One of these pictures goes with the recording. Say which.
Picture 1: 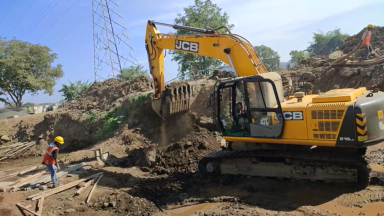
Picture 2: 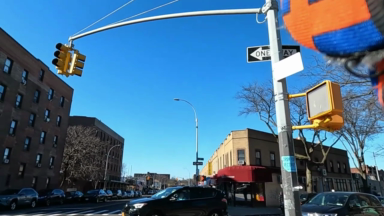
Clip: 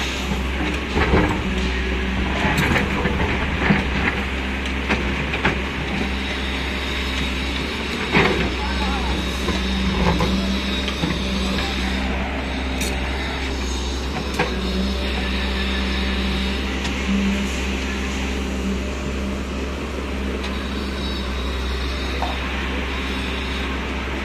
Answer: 1